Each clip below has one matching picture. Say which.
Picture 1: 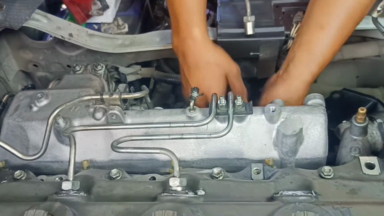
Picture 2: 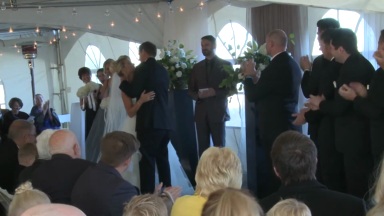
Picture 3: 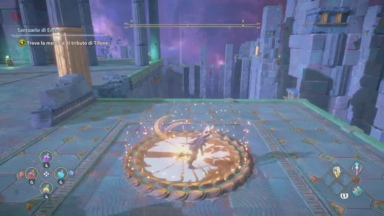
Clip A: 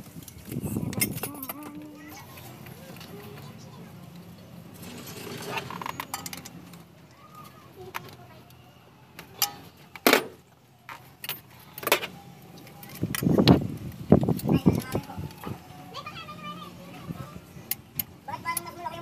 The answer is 1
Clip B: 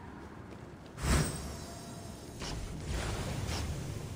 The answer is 3